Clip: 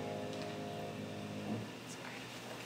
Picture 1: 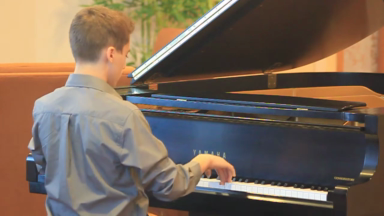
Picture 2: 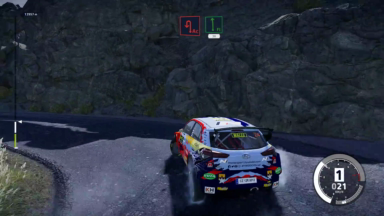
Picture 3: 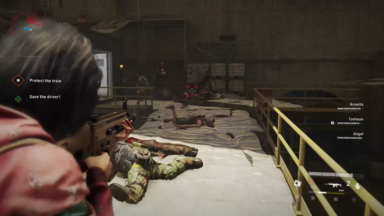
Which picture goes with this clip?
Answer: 1